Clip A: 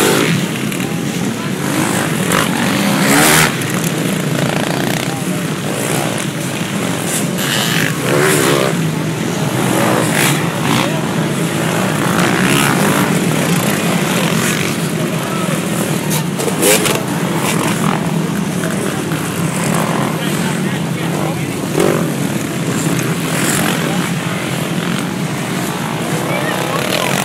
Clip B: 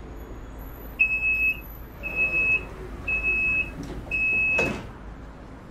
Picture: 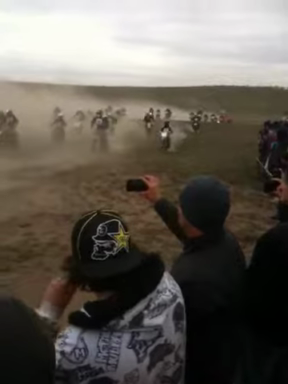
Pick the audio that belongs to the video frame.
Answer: A